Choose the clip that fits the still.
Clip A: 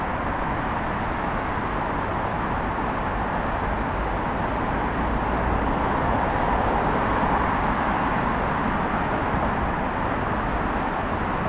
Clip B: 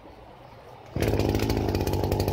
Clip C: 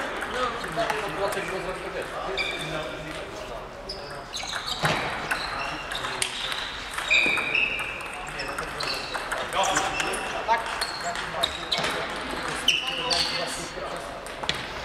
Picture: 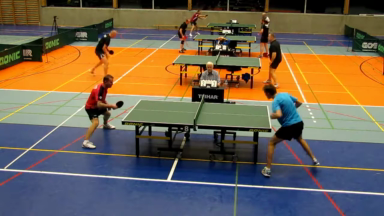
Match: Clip C